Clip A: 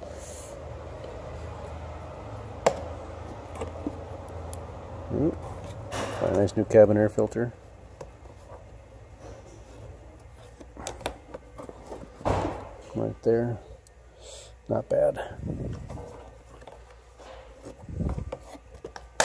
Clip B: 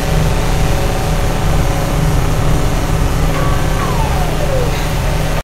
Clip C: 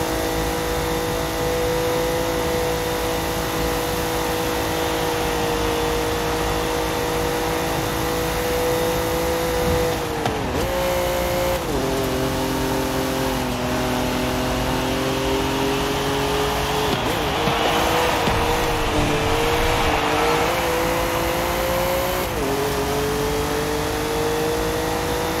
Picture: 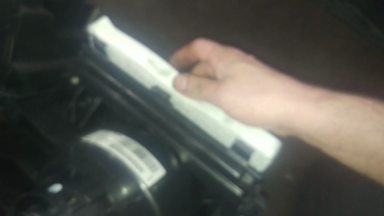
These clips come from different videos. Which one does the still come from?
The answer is A